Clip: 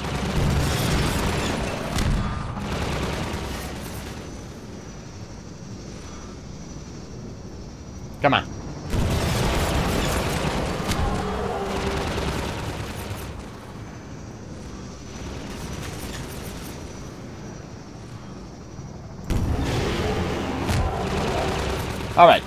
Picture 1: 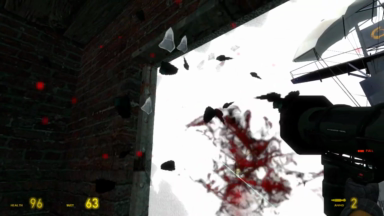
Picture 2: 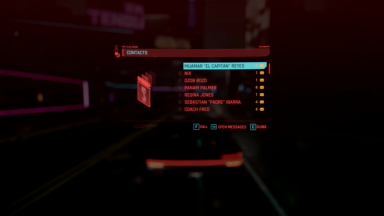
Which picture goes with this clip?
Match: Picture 1